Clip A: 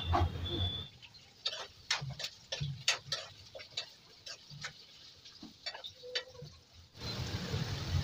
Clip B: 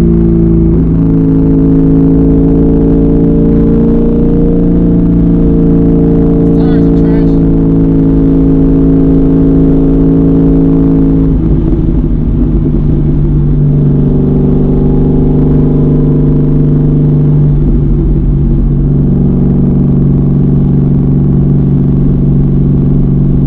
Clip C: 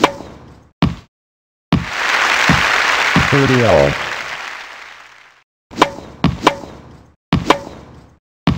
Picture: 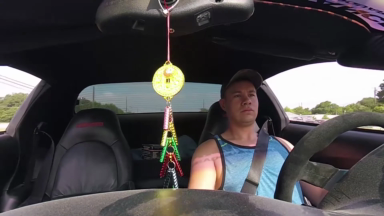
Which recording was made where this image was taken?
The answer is B